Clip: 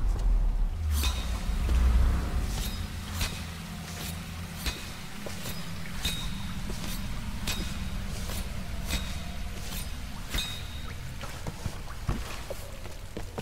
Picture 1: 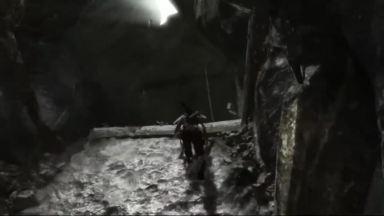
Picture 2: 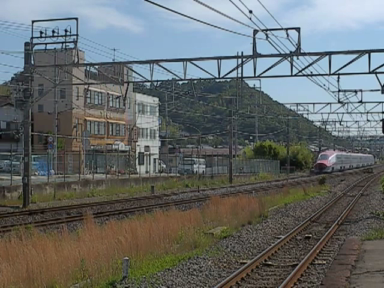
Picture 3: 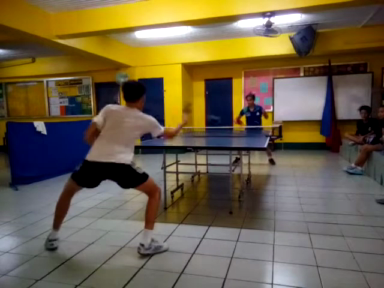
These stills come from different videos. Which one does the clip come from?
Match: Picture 1